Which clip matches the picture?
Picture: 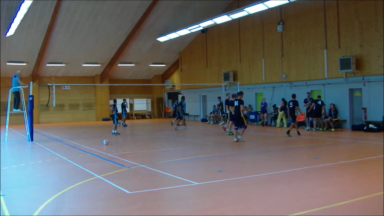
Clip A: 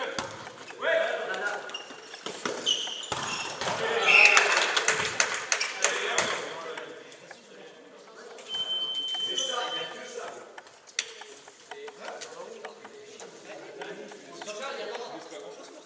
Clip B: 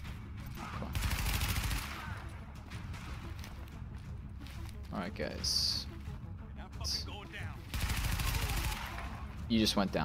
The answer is A